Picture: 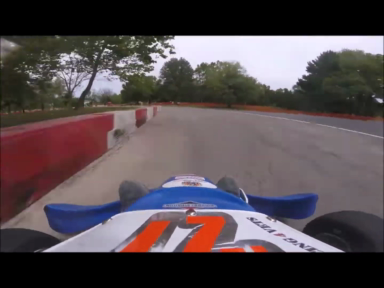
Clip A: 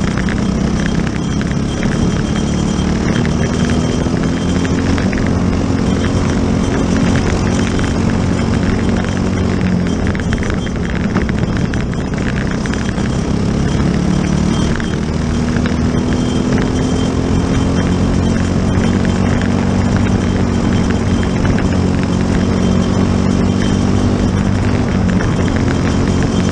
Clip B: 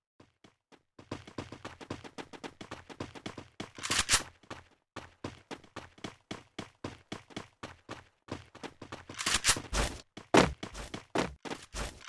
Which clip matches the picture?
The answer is A